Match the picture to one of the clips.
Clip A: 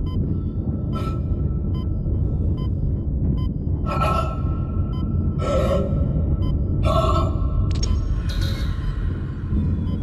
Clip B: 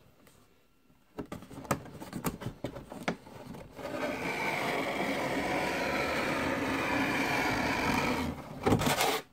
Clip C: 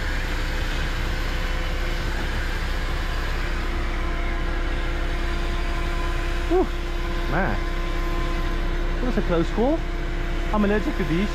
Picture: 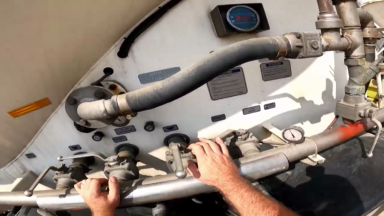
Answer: C